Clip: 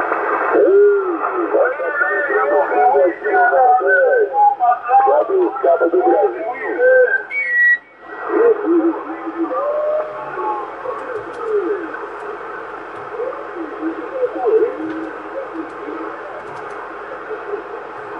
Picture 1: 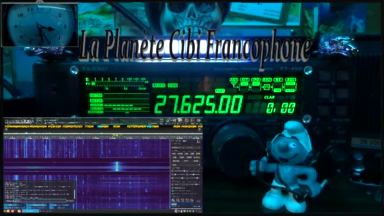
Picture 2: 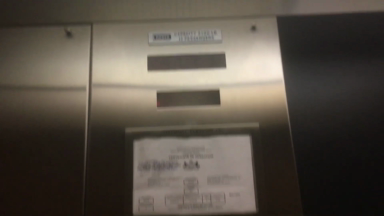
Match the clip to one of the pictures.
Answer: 1